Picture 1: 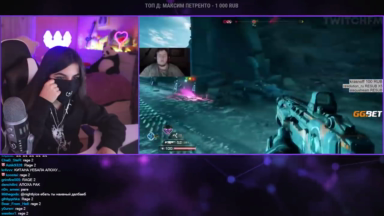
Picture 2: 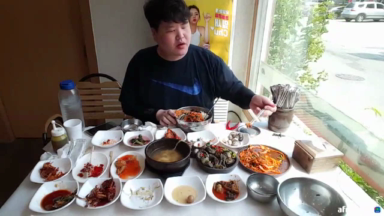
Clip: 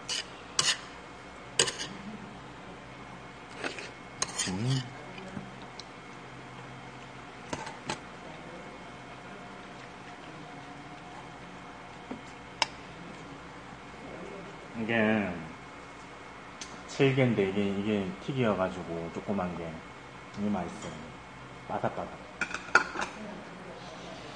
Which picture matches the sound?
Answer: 2